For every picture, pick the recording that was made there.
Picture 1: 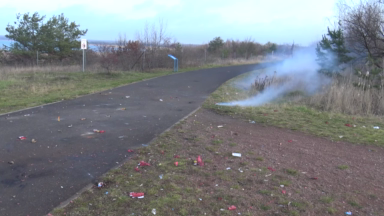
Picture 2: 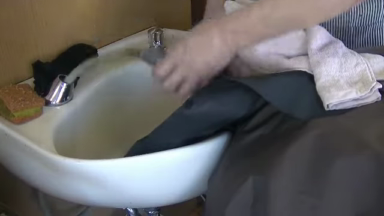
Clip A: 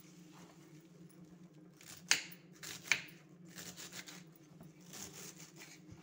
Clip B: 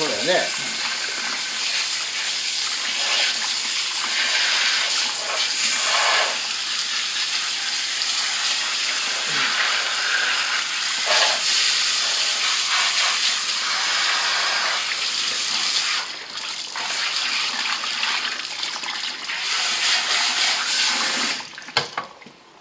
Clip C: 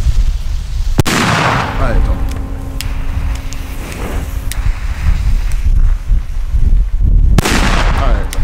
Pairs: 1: C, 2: B